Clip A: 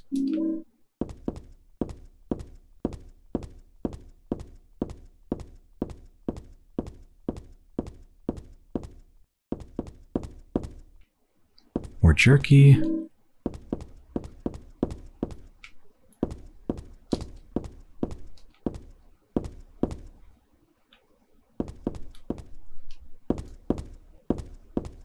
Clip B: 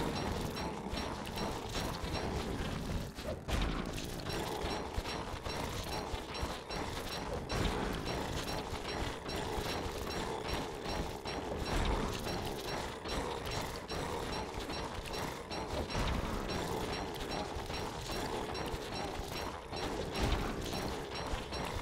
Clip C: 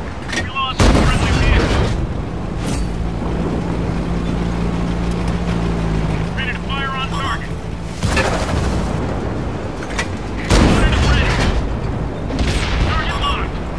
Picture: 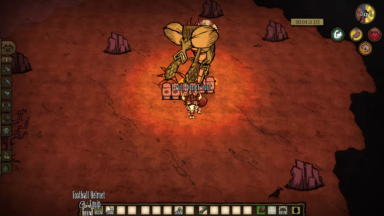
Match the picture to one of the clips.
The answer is B